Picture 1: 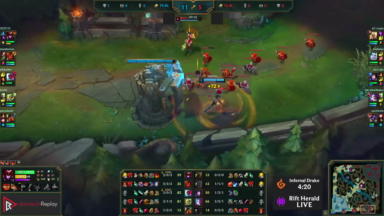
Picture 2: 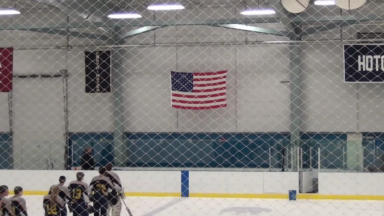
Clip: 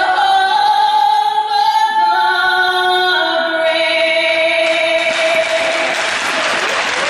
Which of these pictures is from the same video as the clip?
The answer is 2